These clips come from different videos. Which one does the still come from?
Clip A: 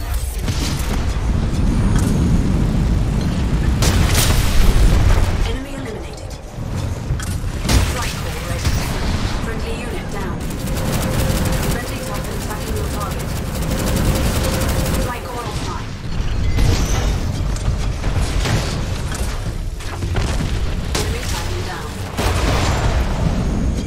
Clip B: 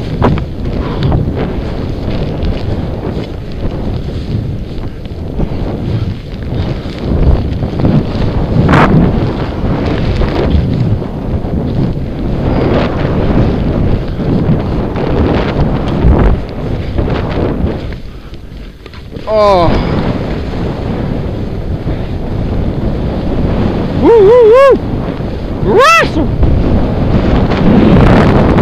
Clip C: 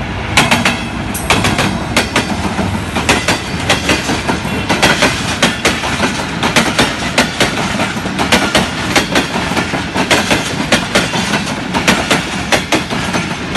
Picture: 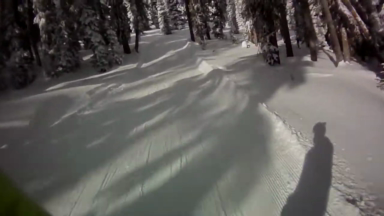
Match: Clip B